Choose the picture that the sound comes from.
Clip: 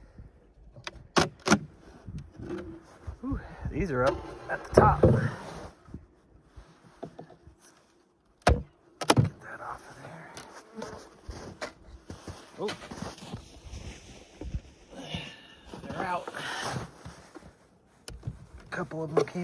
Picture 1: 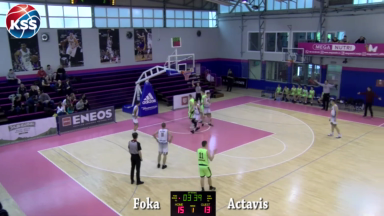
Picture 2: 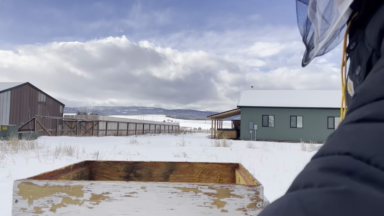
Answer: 2